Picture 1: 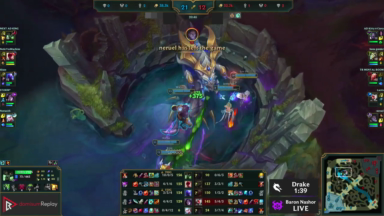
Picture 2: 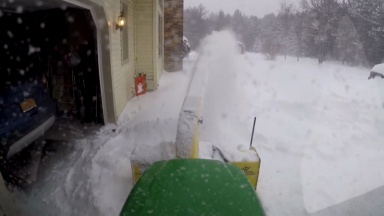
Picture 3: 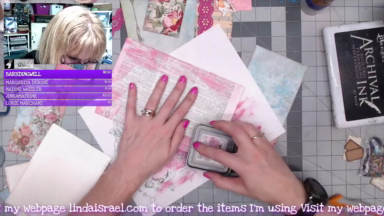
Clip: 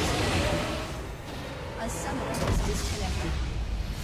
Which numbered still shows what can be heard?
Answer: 1